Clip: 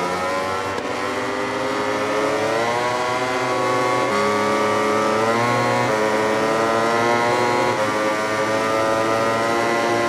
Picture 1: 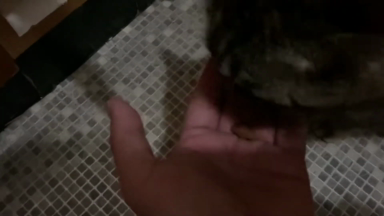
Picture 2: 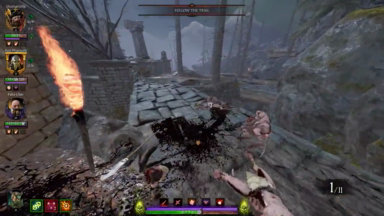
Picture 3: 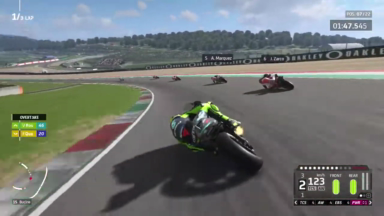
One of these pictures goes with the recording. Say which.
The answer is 3